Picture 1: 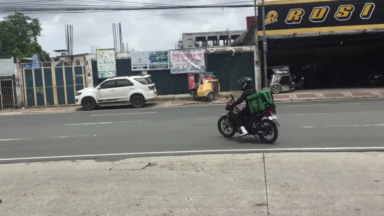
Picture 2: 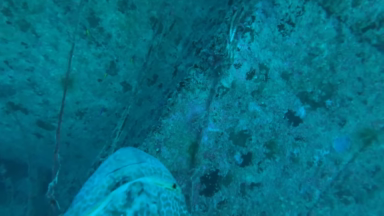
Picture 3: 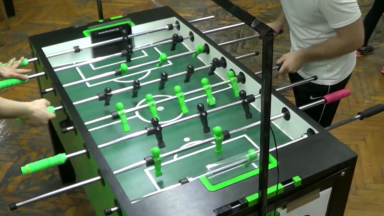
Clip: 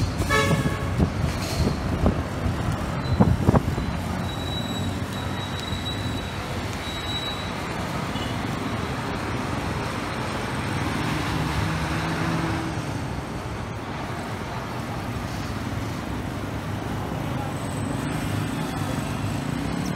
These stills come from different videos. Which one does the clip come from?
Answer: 1